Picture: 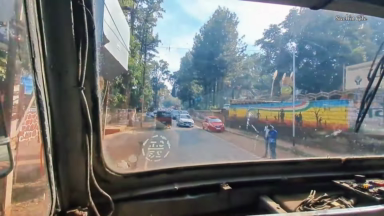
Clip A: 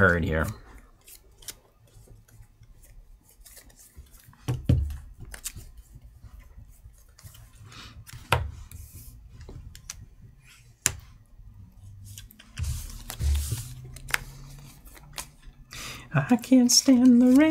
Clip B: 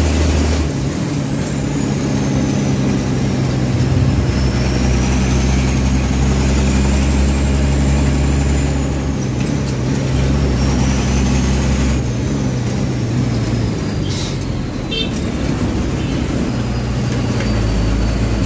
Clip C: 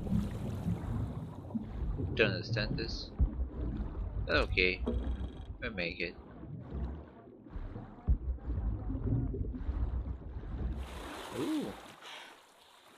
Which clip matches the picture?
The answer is B